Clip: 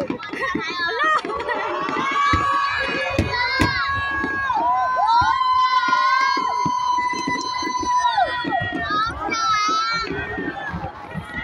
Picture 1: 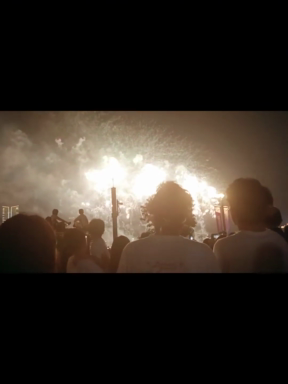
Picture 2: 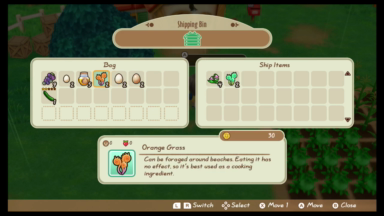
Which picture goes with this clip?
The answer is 1